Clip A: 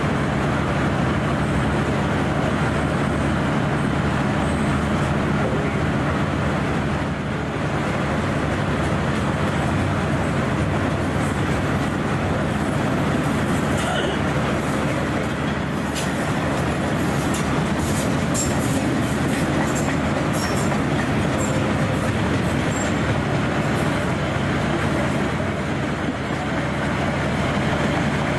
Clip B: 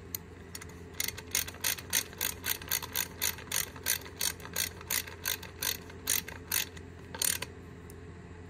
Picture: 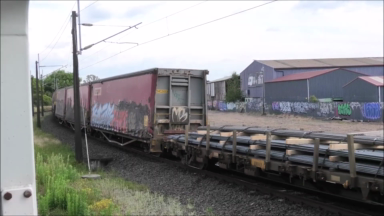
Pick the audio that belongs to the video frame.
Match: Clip A